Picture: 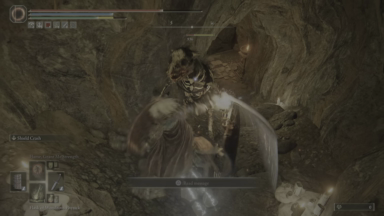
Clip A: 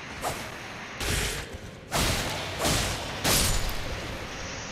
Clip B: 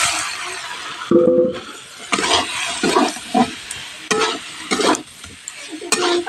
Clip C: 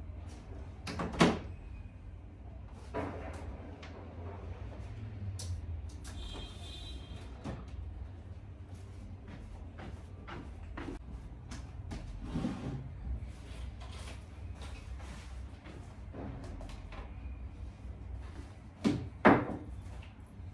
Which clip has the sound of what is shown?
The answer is A